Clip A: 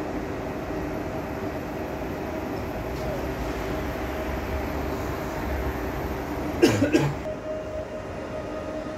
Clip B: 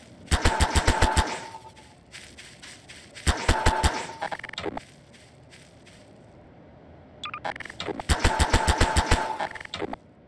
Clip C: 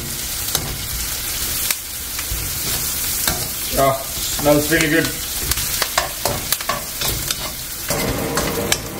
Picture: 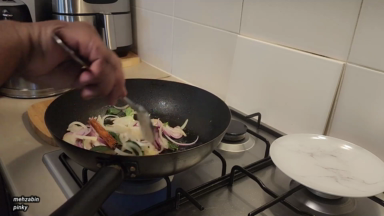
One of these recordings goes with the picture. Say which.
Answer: C